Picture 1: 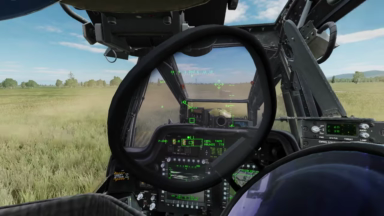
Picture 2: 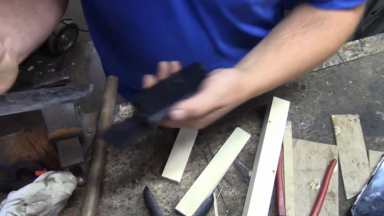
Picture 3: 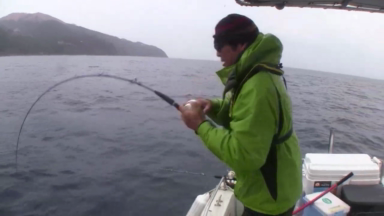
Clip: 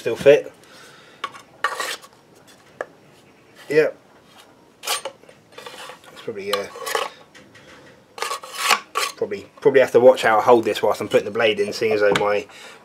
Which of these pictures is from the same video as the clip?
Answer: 2